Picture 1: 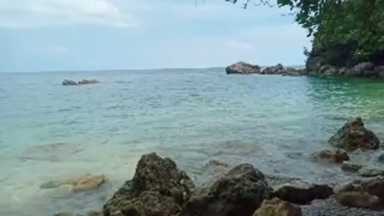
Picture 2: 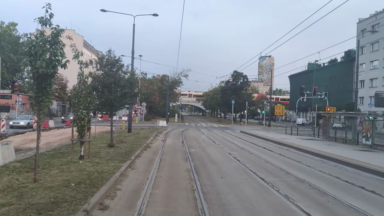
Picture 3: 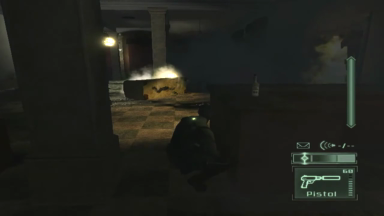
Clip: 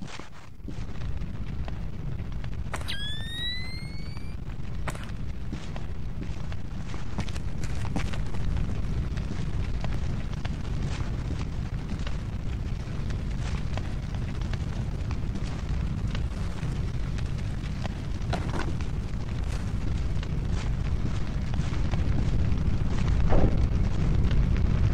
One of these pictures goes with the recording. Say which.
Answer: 3